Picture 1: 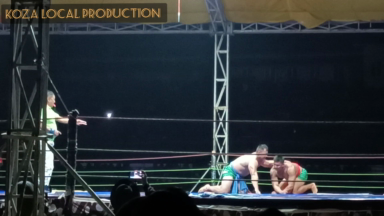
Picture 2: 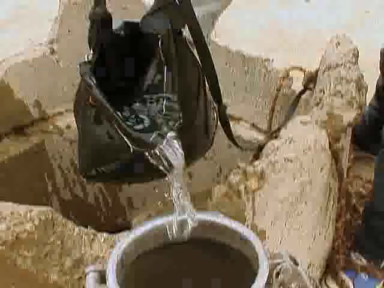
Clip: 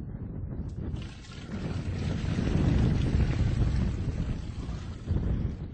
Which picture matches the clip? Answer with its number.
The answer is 2